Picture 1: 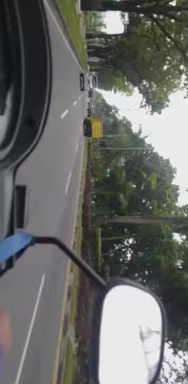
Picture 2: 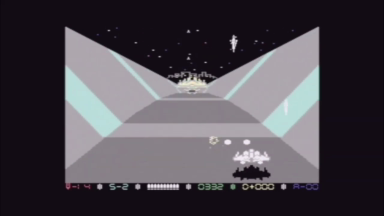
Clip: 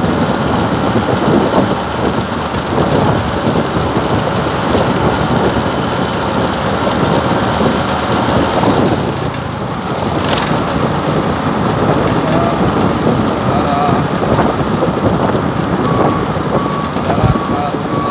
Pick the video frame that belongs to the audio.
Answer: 1